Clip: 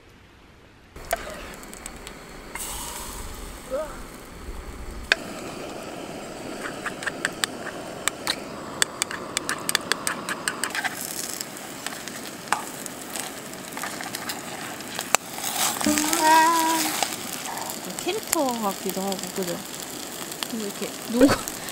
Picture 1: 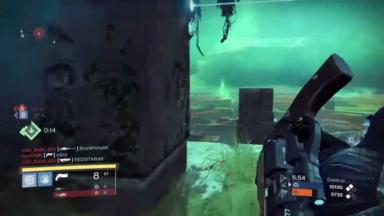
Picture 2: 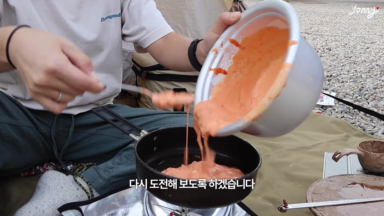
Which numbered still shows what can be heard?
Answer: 2